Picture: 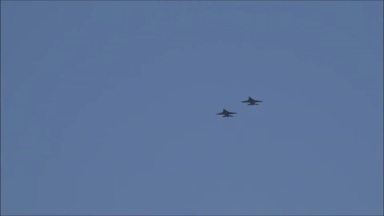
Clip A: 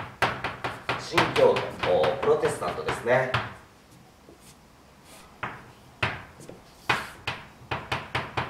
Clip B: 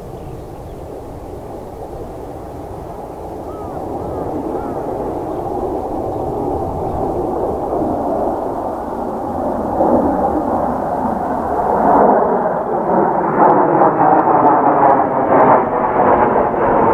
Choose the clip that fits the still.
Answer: B